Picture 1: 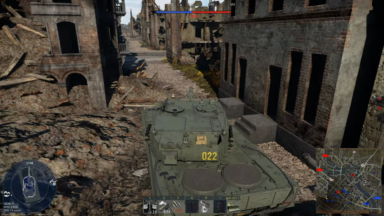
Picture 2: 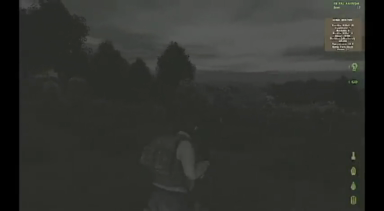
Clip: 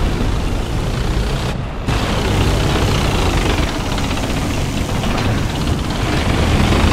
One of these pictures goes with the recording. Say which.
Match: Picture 1